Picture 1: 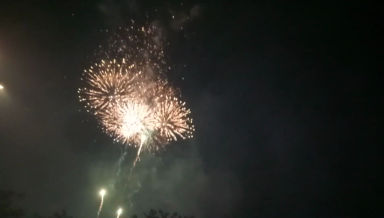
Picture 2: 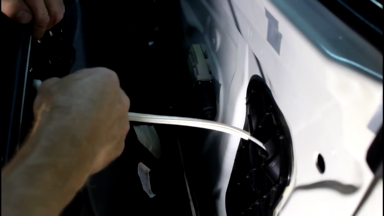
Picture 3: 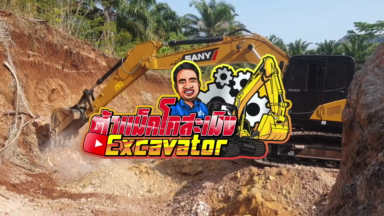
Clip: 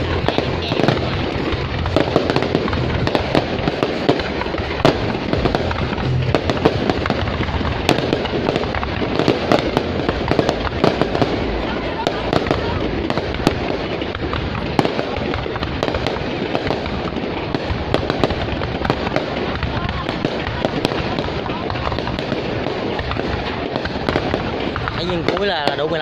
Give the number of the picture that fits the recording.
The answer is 1